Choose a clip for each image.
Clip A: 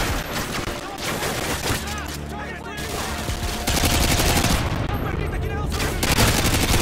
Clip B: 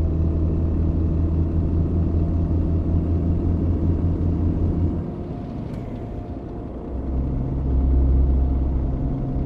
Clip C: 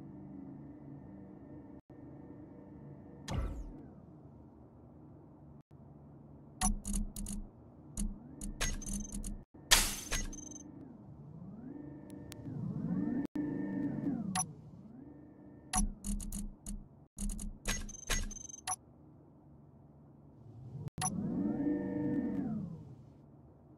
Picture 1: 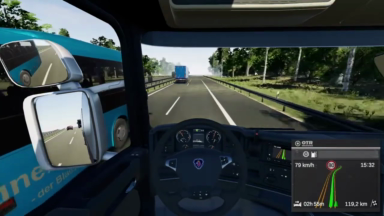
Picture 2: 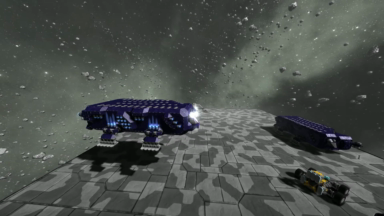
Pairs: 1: B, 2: C